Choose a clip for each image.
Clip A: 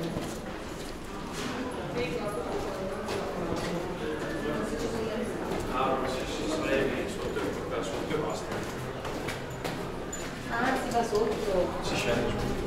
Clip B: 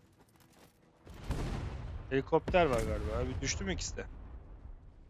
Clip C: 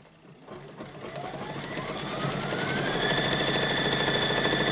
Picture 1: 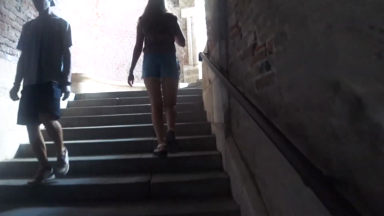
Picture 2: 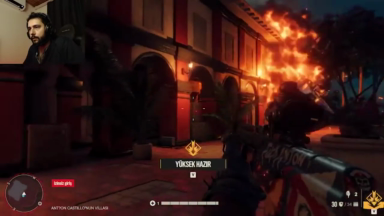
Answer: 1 A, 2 B